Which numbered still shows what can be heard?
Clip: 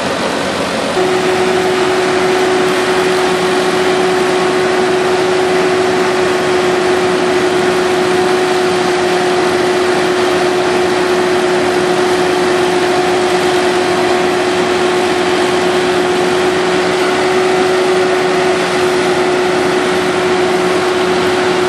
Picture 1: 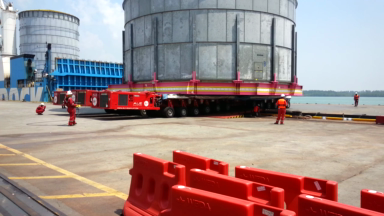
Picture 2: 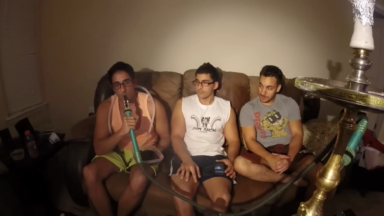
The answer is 1